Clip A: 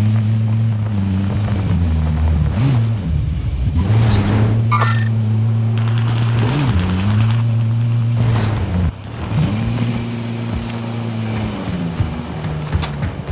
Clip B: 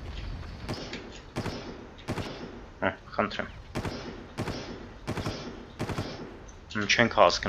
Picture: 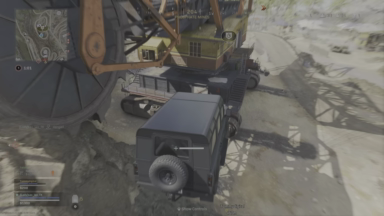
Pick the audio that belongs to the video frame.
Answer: A